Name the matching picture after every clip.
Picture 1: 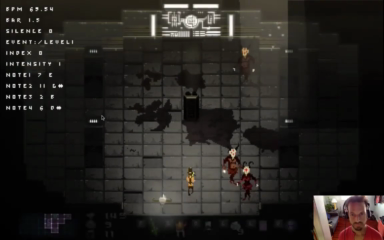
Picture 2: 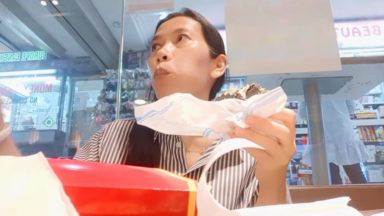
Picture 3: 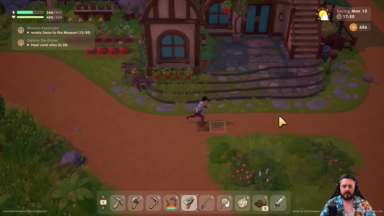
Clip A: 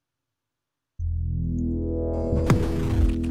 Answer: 1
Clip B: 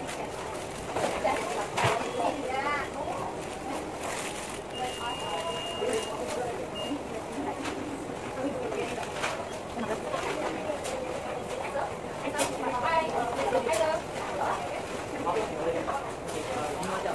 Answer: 2